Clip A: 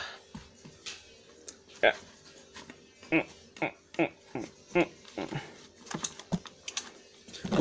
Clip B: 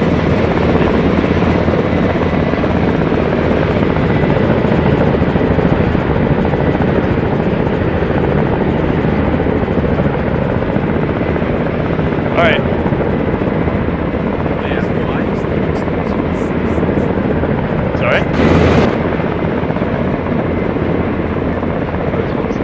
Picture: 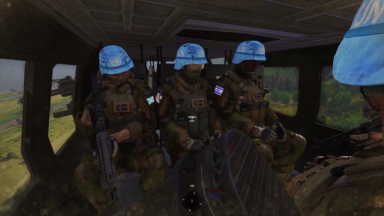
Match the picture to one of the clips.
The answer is B